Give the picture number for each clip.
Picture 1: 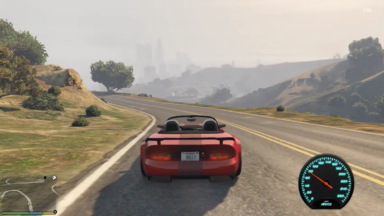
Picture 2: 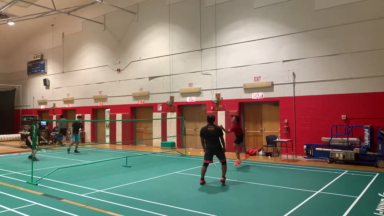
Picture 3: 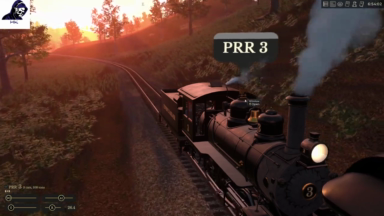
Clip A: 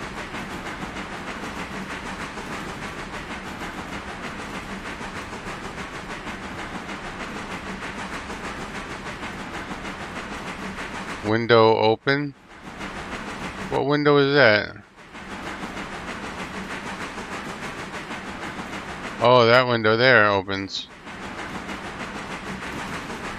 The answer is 3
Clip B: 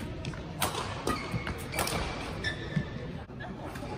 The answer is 2